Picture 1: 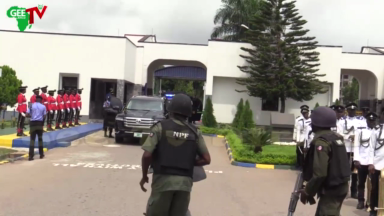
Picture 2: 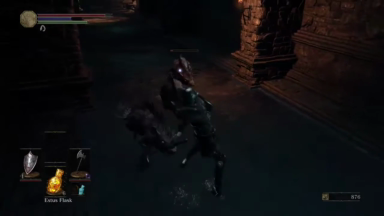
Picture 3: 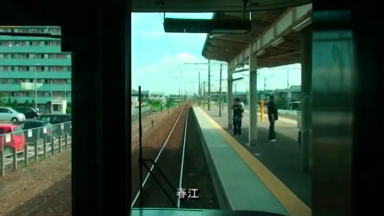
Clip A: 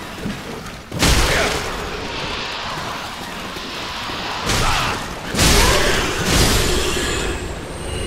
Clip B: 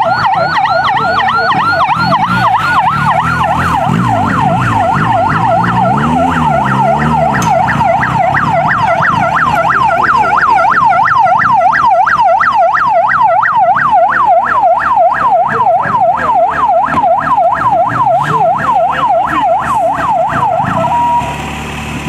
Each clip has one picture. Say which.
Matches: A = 2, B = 1